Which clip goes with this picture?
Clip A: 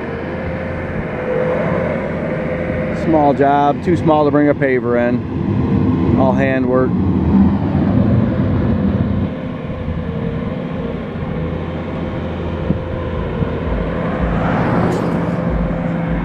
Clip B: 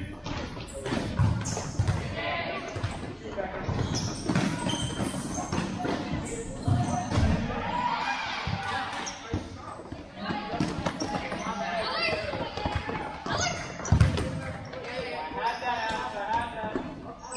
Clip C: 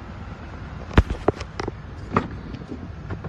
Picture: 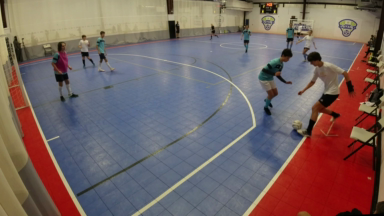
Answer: B